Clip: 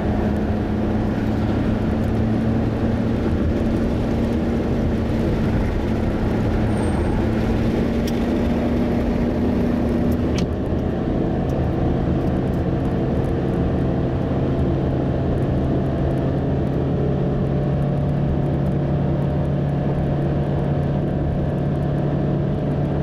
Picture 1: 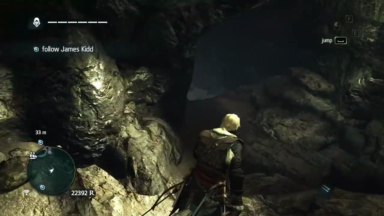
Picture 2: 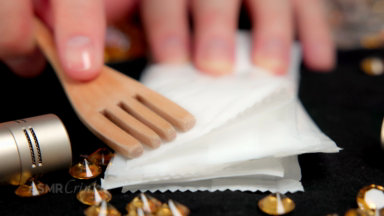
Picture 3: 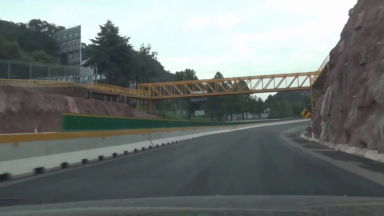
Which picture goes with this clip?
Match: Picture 3